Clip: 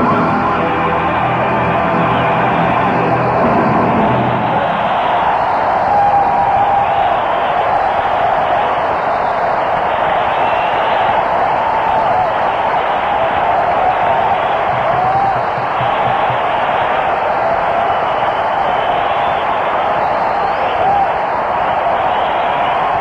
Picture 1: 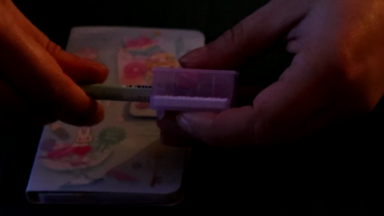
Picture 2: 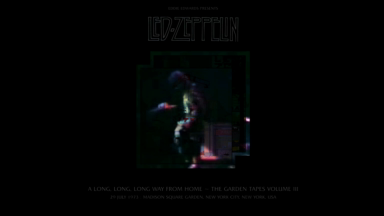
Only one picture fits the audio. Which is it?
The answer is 2